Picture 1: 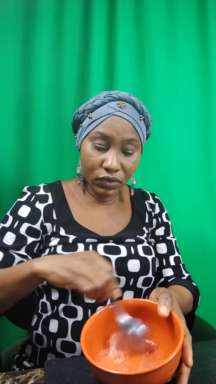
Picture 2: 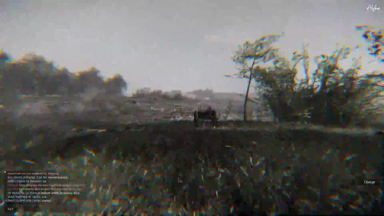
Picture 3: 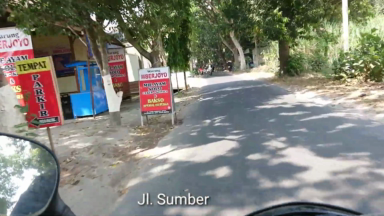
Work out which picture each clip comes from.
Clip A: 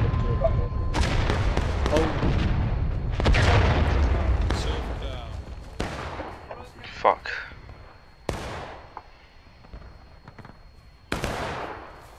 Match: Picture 2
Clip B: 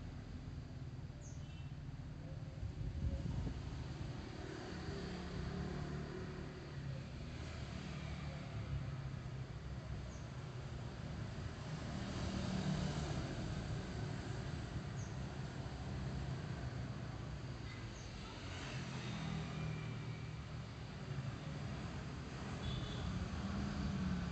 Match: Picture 3